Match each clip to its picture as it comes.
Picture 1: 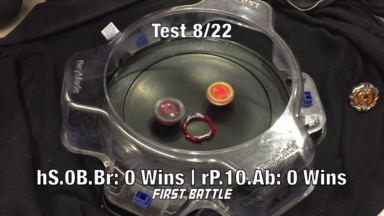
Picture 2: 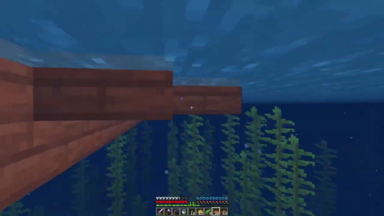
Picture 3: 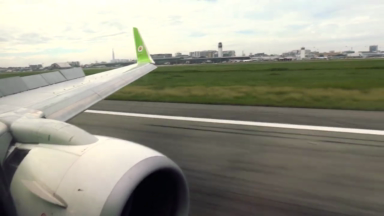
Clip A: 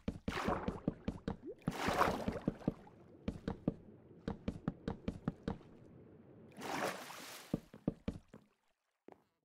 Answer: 2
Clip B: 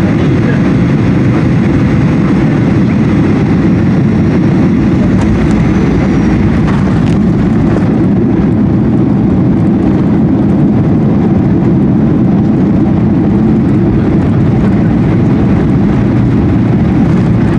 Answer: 3